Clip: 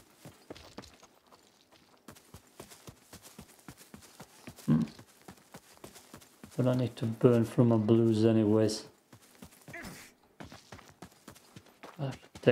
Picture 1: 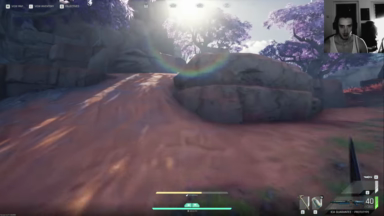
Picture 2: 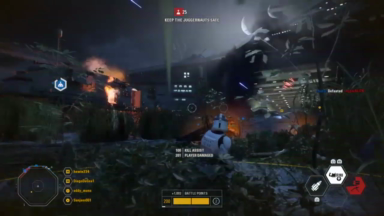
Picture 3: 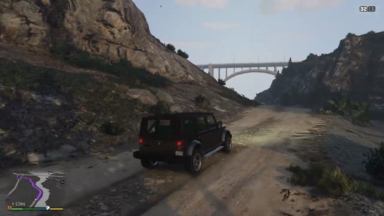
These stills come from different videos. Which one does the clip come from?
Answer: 1